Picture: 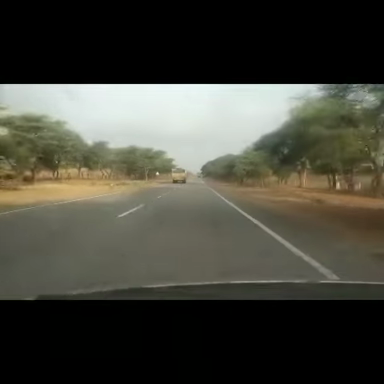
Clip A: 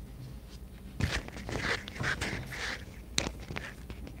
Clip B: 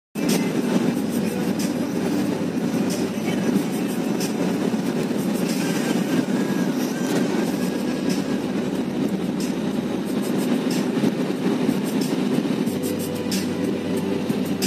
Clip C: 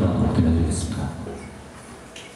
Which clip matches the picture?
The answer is B